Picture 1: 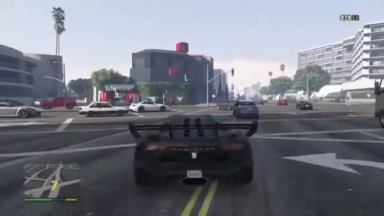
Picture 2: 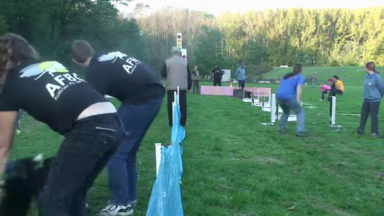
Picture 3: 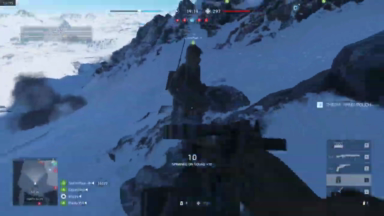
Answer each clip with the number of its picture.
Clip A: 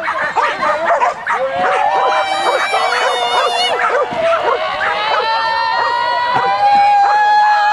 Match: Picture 2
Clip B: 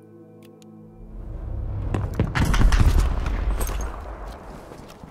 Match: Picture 3